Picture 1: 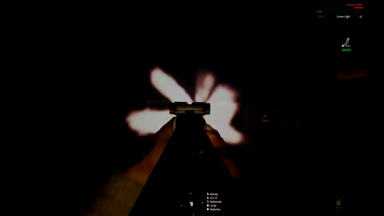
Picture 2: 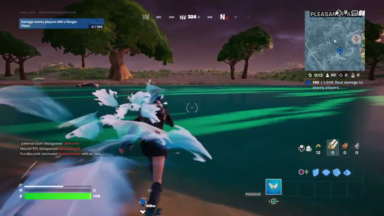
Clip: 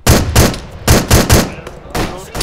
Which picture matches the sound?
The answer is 1